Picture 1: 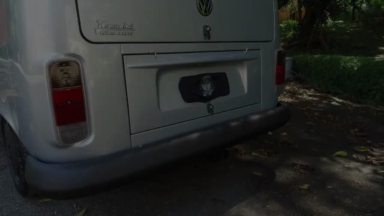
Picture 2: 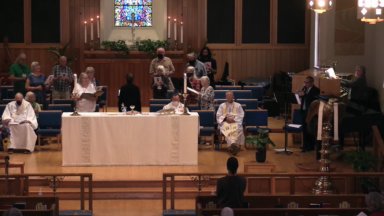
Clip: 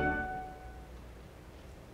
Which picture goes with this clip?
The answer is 2